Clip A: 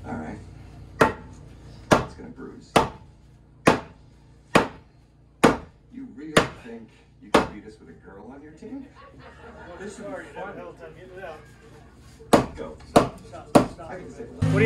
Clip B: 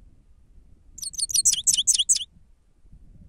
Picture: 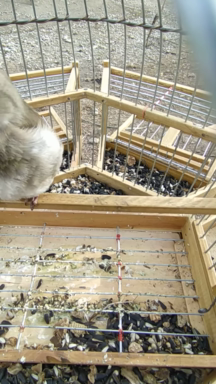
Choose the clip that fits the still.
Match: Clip B